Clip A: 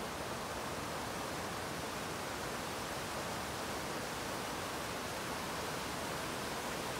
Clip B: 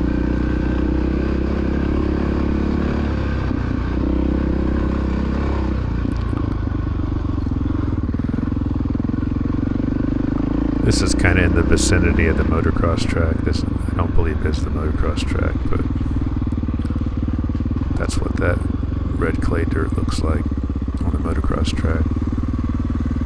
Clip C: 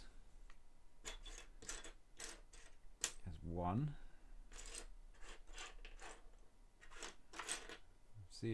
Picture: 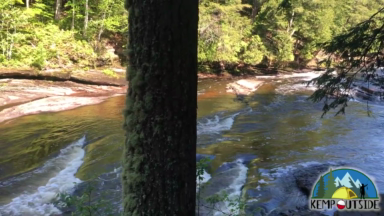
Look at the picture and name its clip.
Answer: A